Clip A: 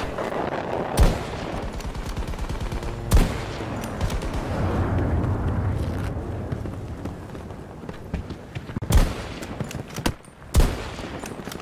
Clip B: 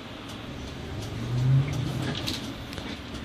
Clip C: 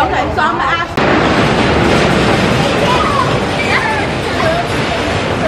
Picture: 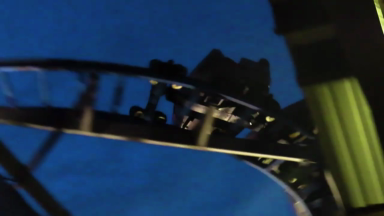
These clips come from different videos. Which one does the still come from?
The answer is C